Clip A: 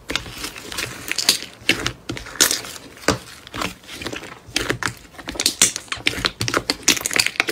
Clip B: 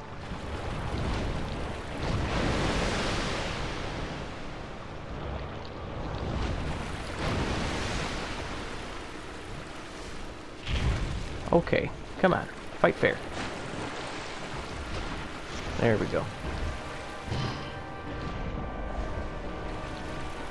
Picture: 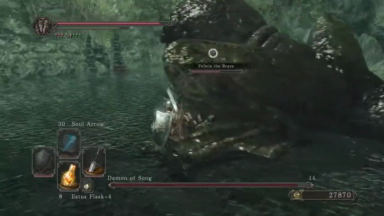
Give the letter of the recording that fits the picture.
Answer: B